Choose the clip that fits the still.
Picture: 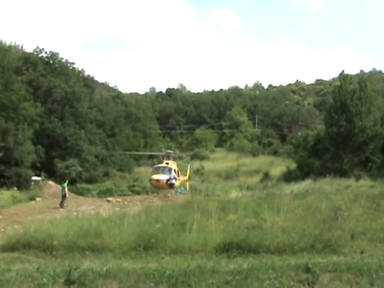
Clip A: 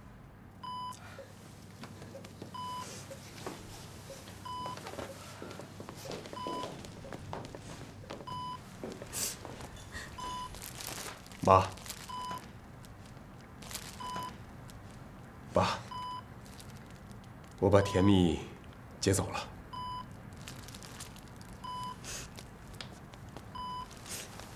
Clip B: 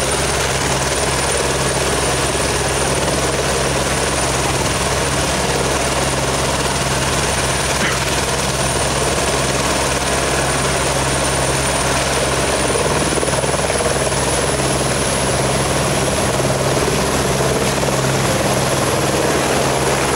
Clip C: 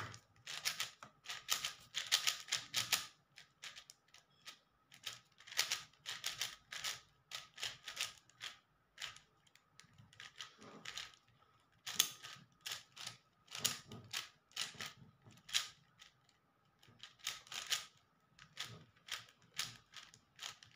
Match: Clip B